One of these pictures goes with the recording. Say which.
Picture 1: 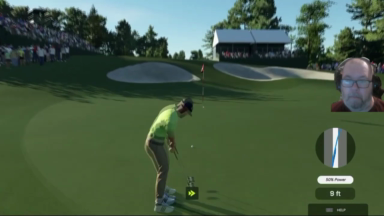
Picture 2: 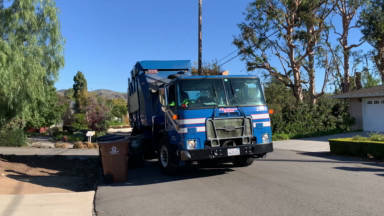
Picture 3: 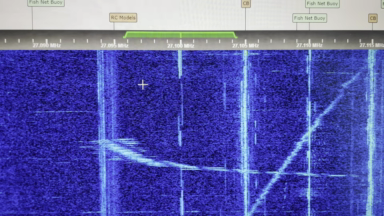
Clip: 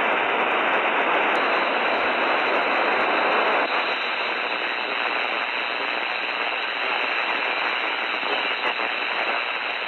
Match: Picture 3